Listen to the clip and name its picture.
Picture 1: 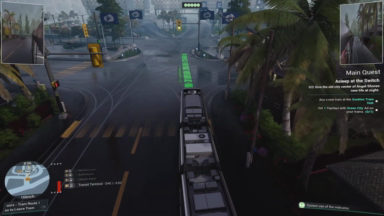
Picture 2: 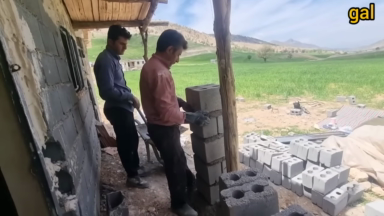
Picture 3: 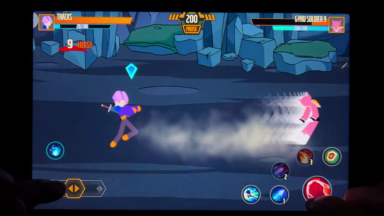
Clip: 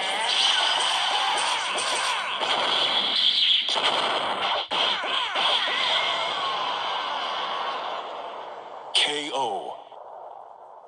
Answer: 3